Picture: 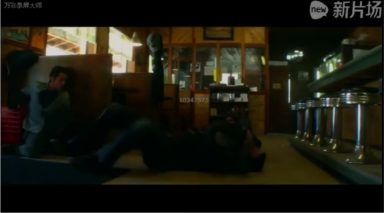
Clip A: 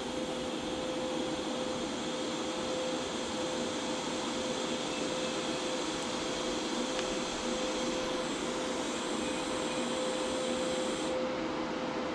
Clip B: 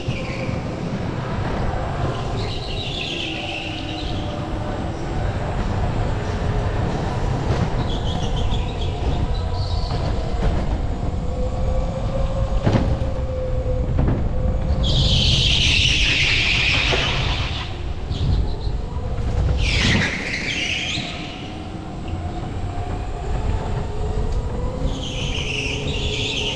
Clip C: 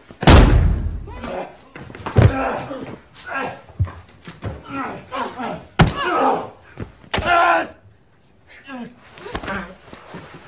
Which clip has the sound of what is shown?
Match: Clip C